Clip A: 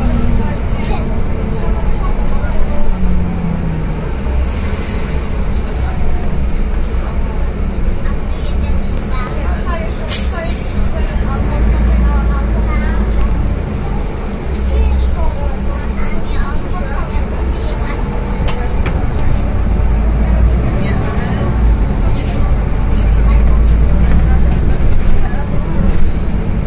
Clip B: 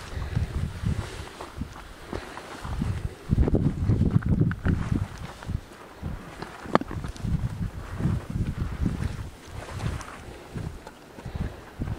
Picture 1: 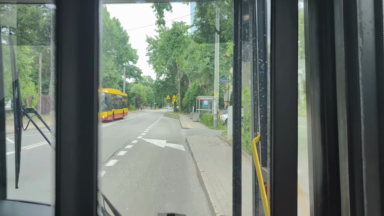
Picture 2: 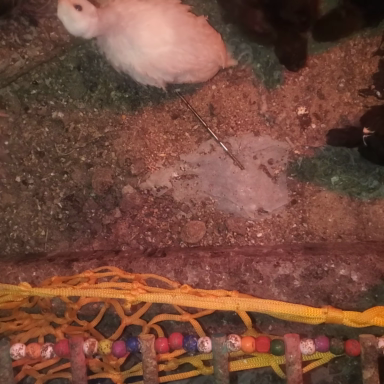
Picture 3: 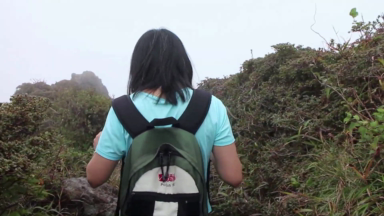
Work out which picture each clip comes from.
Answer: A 1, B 3